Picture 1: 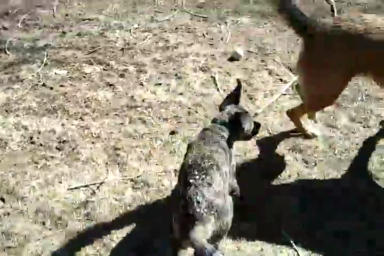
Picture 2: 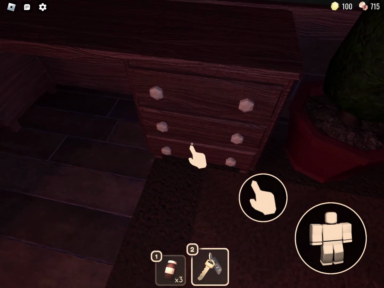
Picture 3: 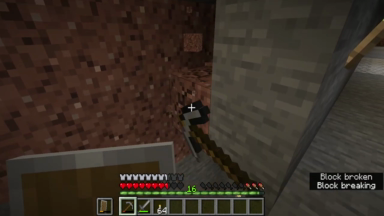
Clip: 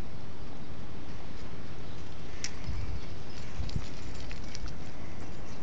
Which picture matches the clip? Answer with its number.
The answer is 1